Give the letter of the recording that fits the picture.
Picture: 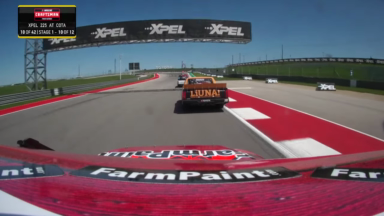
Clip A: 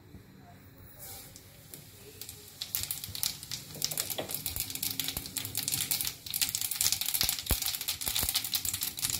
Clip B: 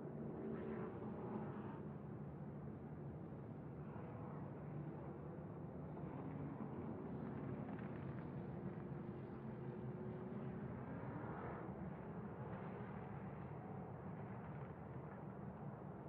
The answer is B